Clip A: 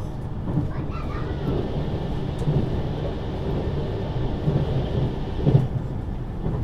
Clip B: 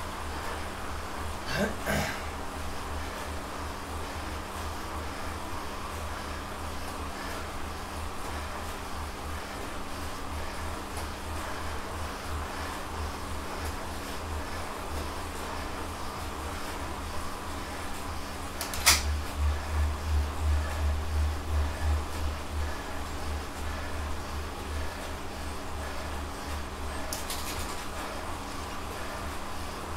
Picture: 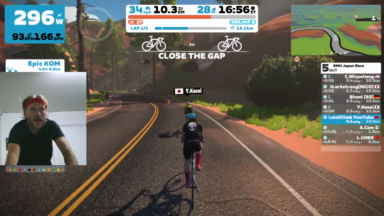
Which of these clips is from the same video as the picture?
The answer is B